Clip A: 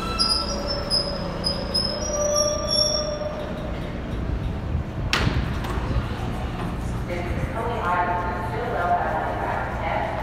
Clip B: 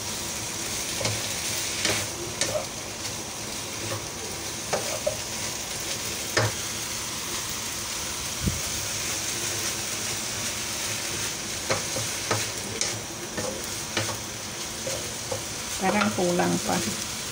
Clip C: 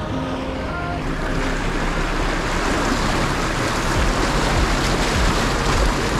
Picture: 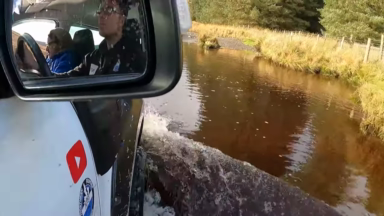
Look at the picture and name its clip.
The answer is C